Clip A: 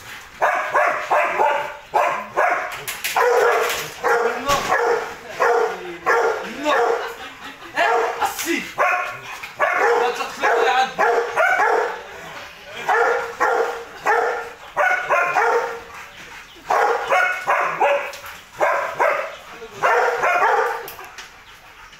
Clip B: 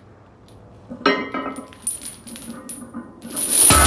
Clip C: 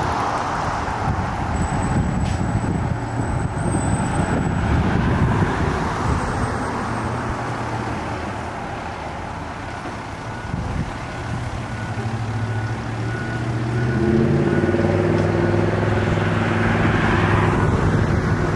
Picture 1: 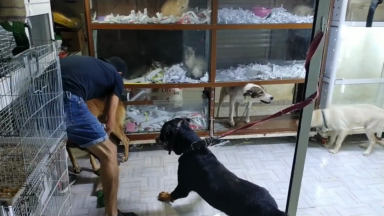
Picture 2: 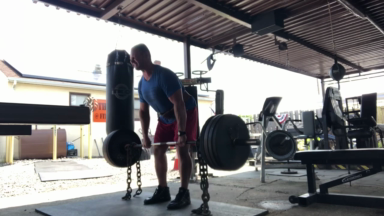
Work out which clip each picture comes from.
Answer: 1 A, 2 B